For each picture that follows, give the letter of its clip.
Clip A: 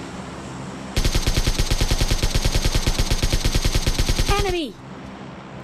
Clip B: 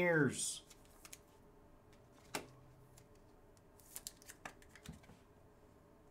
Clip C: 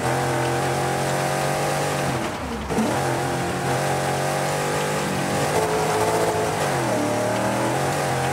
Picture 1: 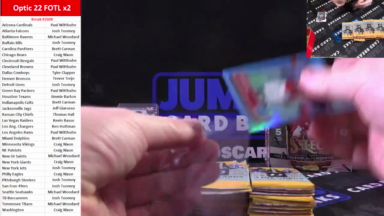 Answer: B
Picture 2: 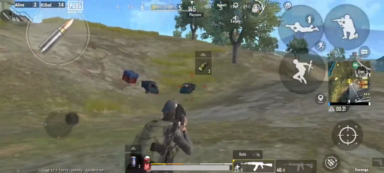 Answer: A